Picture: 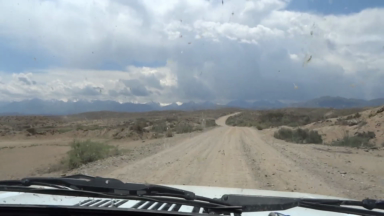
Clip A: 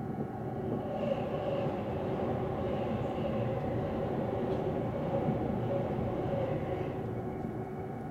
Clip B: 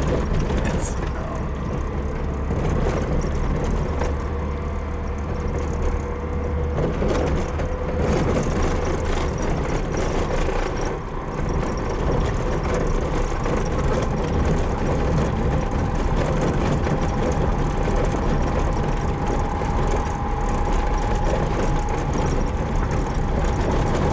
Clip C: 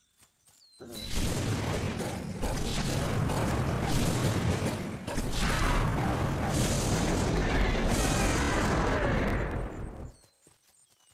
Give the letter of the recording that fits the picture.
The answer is B